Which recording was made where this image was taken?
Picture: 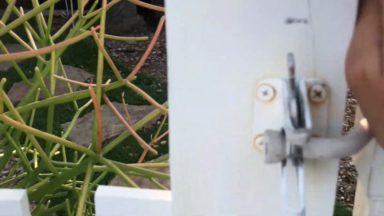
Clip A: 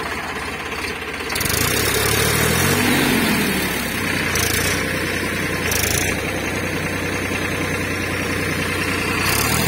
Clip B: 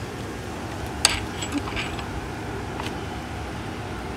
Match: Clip B